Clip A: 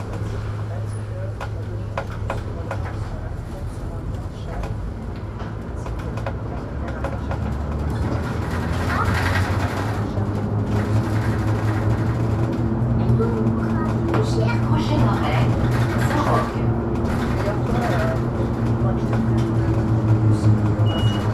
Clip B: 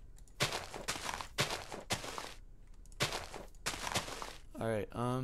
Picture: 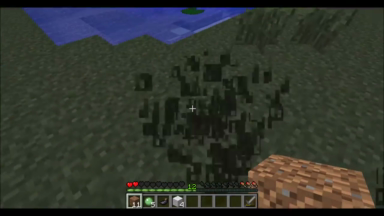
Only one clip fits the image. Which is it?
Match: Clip B